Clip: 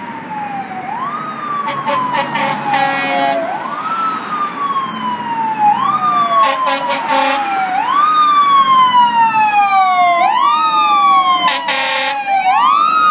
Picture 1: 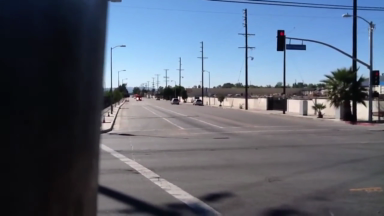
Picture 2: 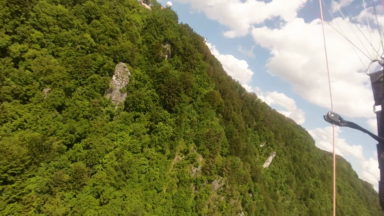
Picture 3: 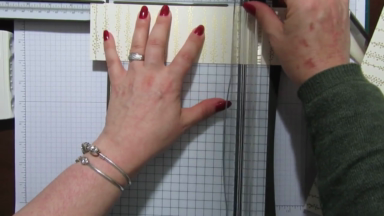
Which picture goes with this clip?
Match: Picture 1